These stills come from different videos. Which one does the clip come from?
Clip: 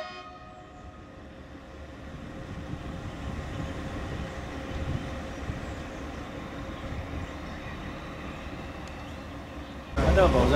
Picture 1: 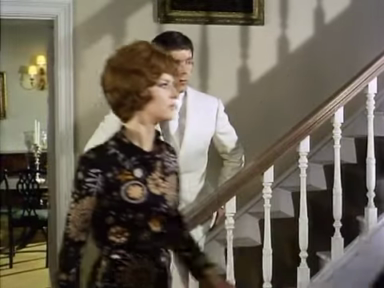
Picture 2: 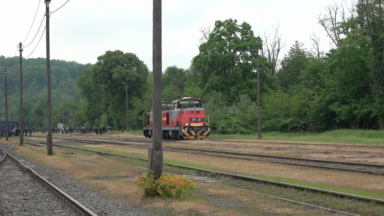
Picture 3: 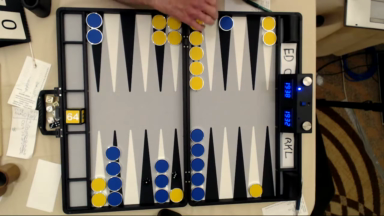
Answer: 2